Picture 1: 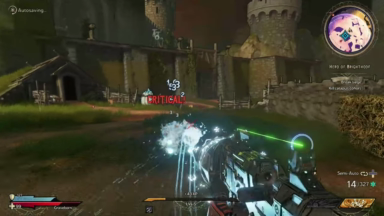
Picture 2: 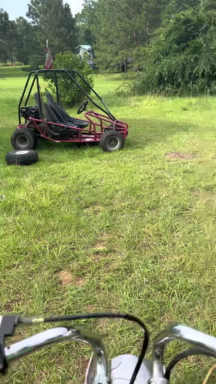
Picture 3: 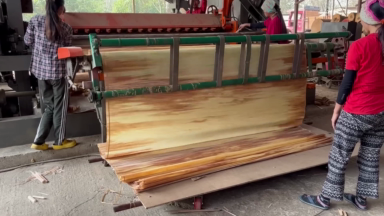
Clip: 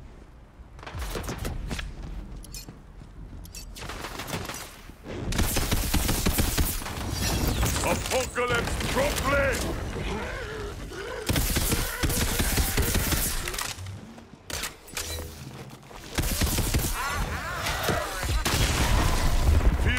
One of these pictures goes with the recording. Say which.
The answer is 1